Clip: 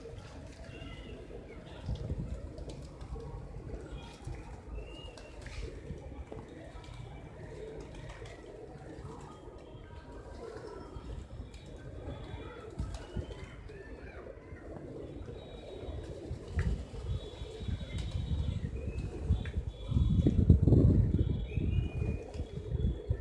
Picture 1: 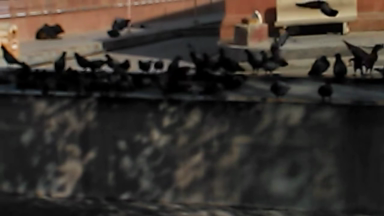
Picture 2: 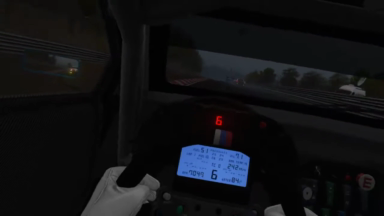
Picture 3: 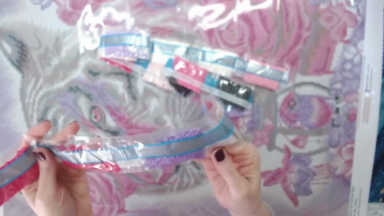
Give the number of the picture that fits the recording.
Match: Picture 1